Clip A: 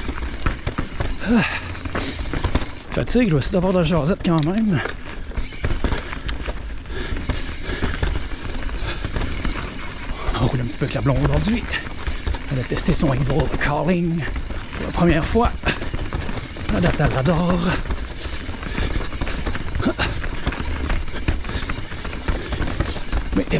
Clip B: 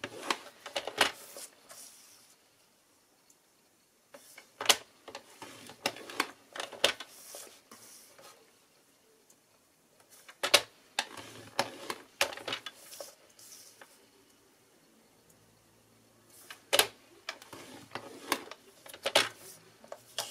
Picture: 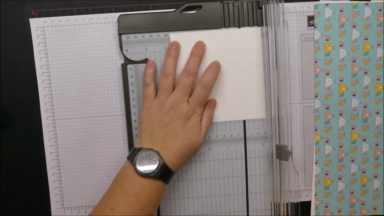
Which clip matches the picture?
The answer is B